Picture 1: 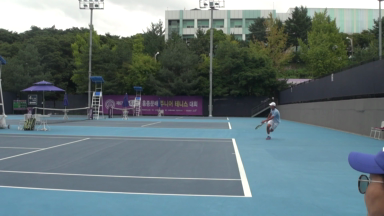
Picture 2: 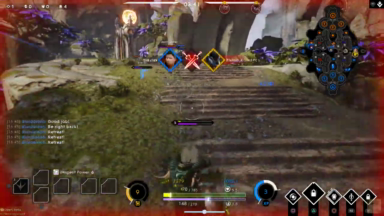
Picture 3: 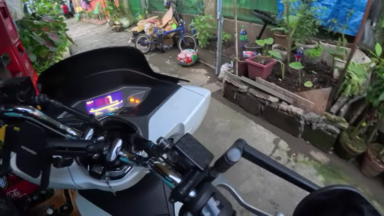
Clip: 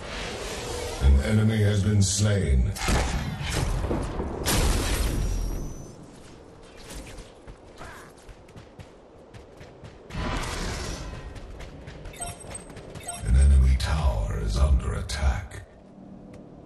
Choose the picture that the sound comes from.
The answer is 2